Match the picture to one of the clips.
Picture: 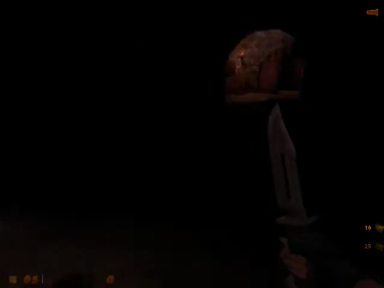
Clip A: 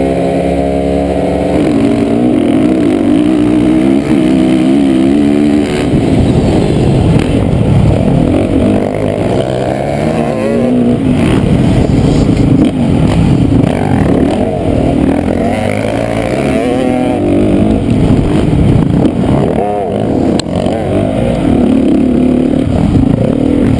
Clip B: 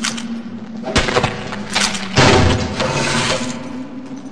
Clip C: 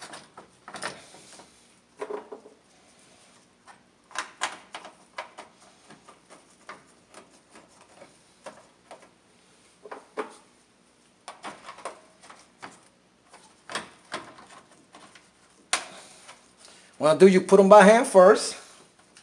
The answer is B